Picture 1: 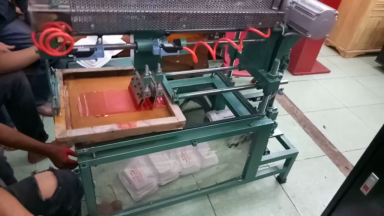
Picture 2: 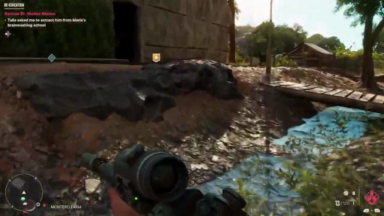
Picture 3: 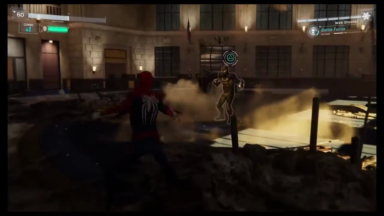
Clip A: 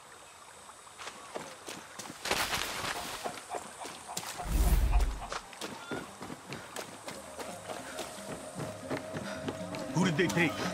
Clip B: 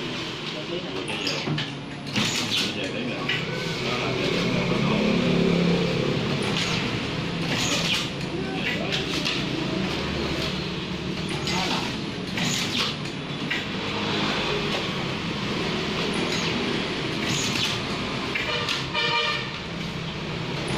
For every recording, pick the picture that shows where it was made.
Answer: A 2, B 1